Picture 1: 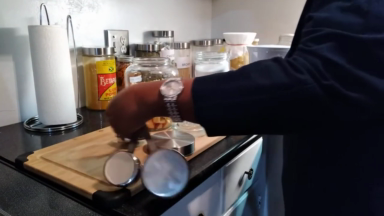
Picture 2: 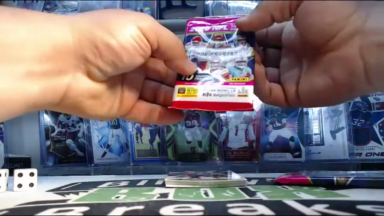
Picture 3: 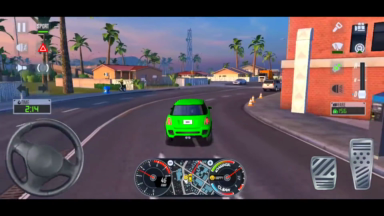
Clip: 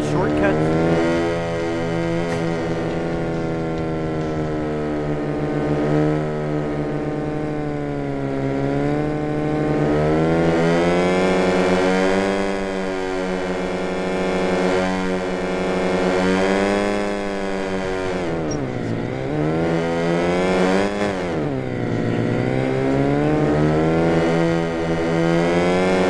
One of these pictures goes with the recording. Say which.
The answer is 3